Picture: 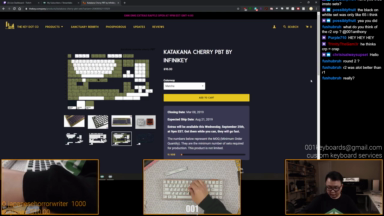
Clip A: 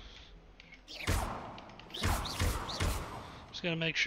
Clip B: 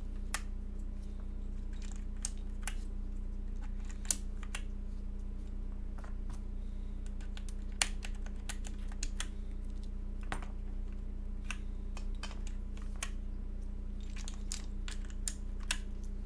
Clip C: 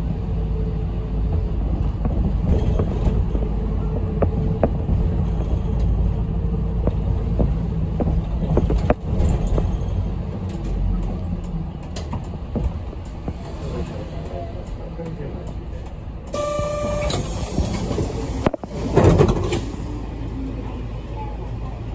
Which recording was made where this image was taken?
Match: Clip B